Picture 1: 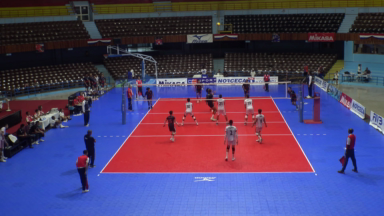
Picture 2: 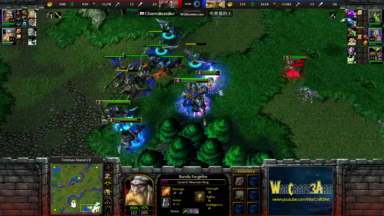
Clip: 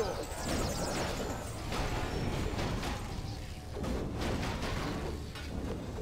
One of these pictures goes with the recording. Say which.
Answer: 2